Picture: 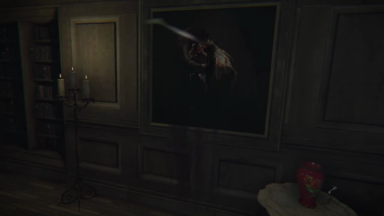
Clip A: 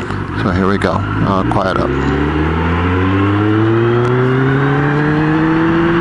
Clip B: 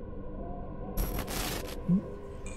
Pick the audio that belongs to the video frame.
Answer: B